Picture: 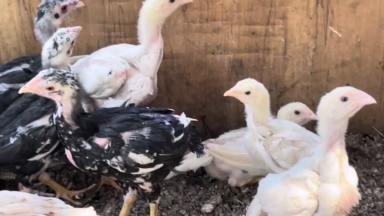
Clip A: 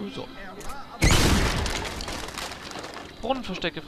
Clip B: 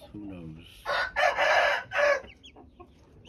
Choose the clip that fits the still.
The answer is B